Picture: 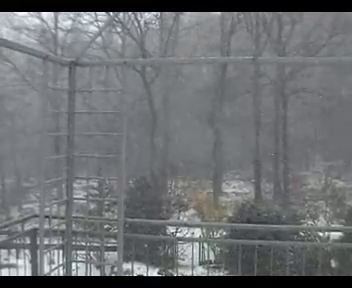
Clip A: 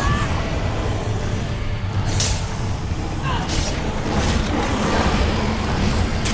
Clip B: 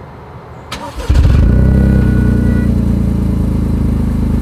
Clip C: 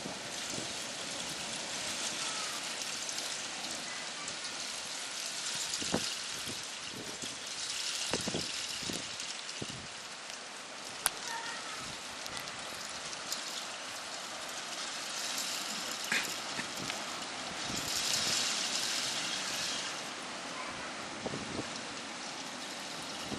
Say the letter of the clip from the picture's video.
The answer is C